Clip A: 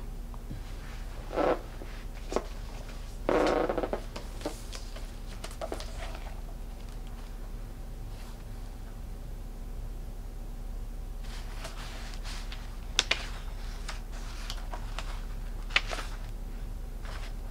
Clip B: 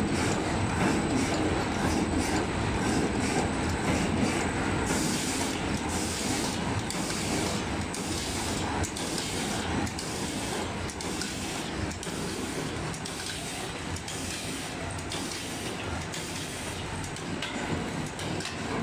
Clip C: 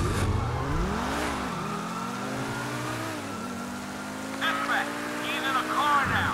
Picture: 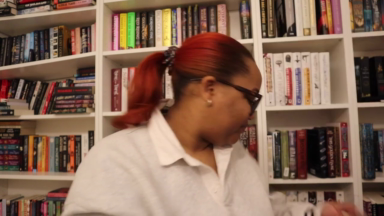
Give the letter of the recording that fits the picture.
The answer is A